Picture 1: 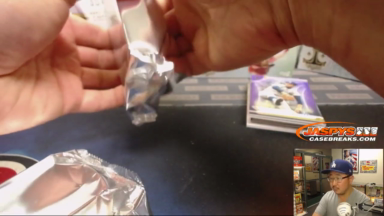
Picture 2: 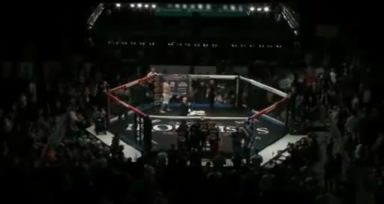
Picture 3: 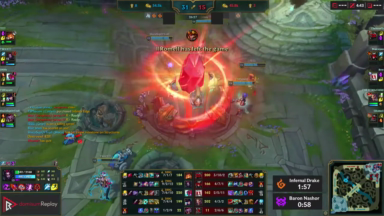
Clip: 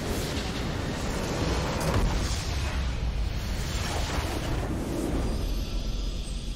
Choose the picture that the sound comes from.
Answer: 3